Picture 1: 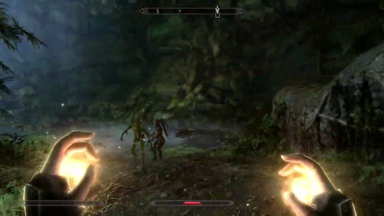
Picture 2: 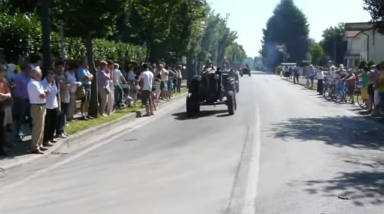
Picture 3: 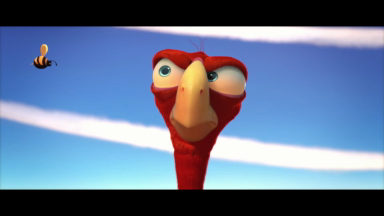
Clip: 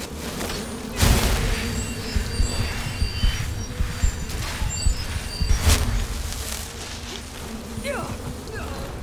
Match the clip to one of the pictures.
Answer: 1